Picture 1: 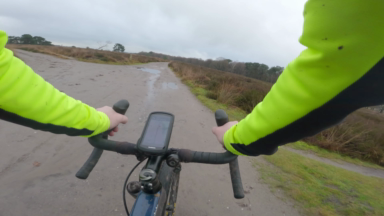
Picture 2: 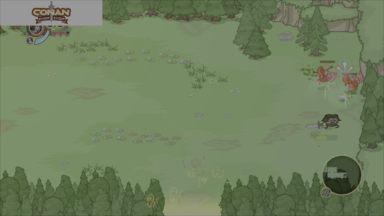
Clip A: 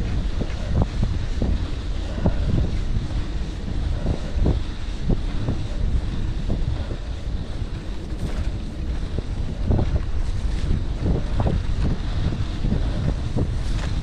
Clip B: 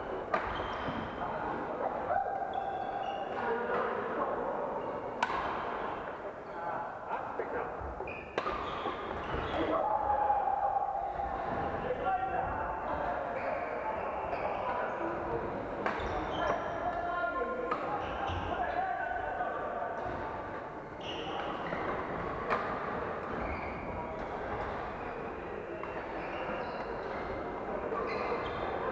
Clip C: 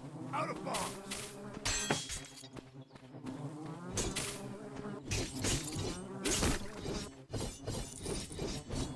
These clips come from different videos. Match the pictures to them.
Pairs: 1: A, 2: C